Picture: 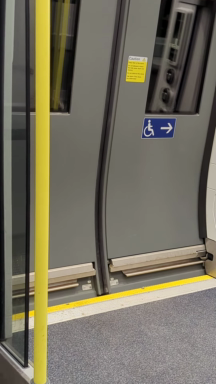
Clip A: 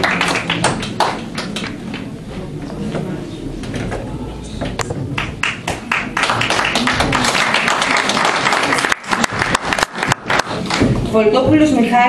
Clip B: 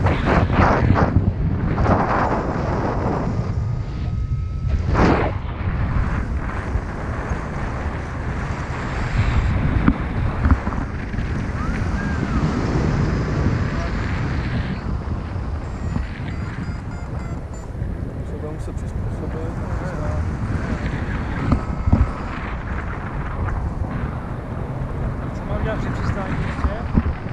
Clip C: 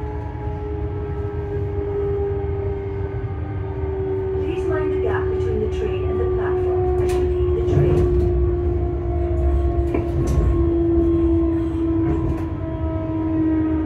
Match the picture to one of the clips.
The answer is C